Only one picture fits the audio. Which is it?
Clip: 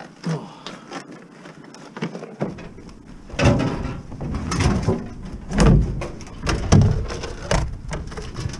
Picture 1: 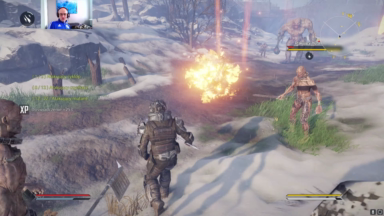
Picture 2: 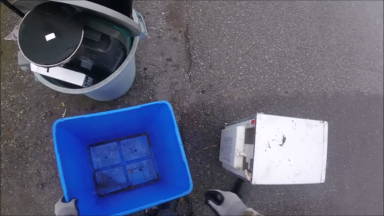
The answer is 2